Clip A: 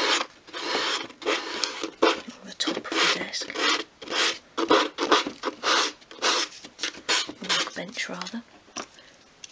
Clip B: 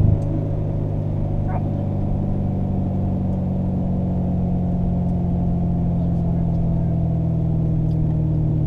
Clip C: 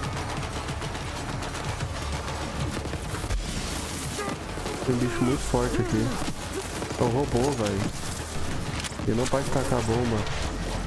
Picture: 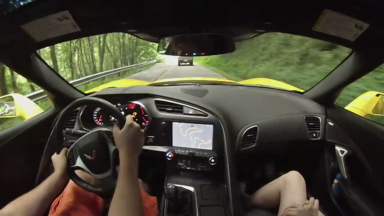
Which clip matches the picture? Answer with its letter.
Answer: B